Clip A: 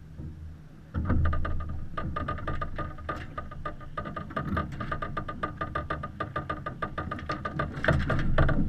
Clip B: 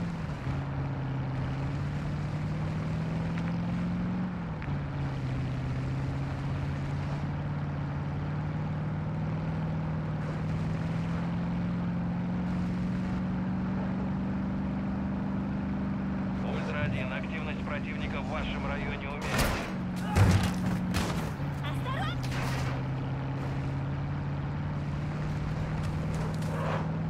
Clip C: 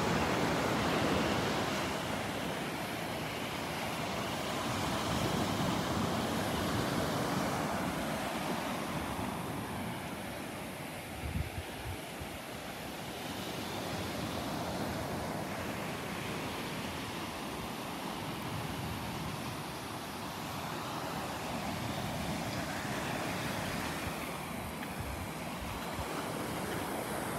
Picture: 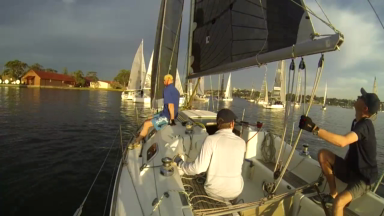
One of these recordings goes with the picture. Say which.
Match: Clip A